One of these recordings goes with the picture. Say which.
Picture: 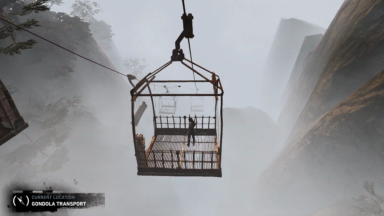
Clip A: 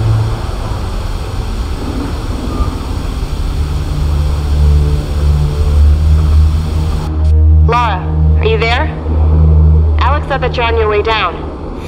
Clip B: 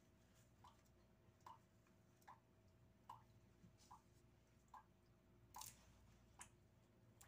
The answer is A